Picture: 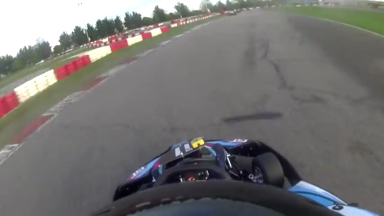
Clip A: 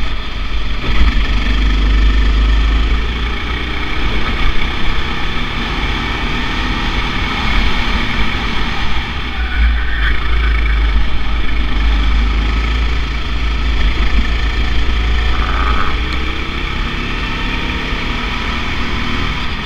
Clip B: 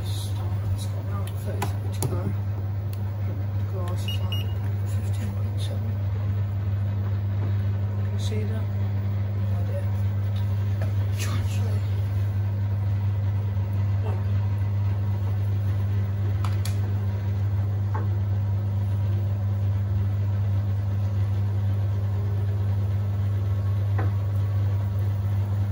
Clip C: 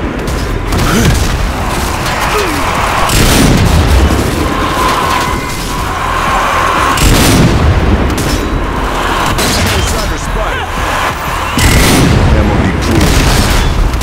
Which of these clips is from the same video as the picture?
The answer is A